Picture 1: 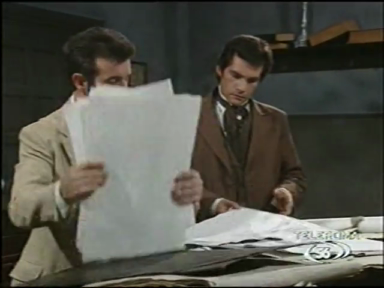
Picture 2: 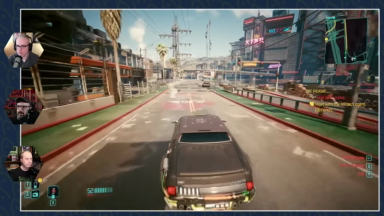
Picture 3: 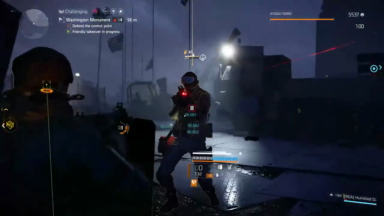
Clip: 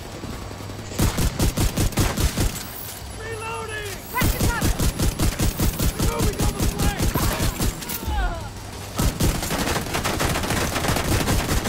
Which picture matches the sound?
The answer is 3